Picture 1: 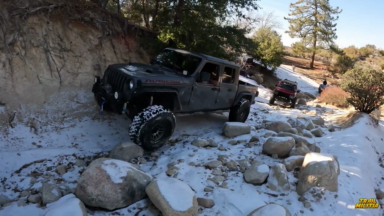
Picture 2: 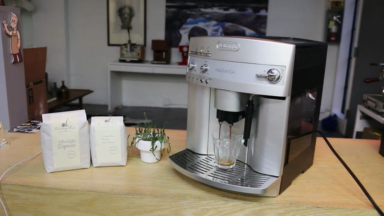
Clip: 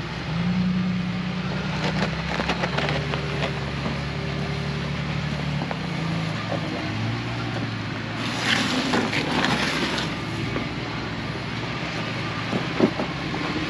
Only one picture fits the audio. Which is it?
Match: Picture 1